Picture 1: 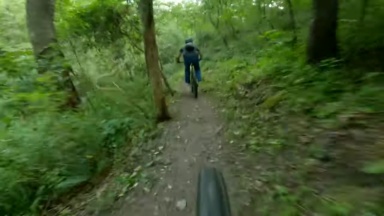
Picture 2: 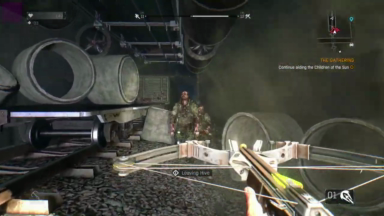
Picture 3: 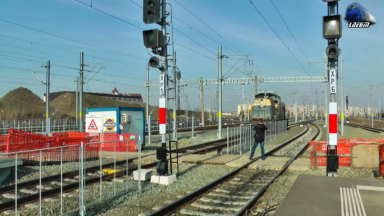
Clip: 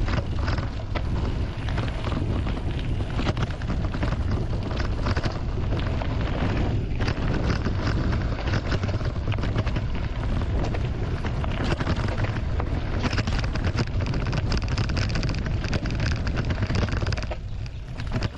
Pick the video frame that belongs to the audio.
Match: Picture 1